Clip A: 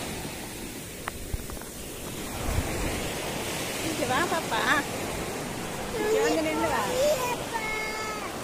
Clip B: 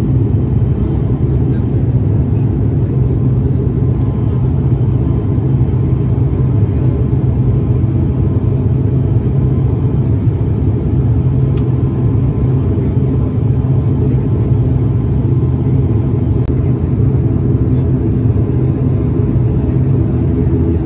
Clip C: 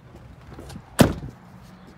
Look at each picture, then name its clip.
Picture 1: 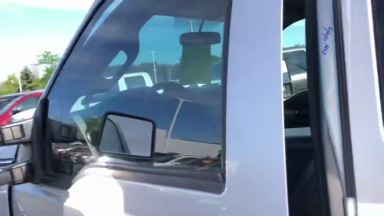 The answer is C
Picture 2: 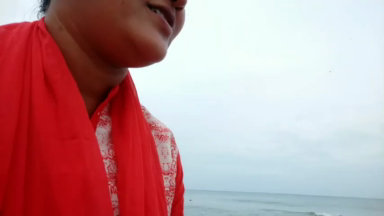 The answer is A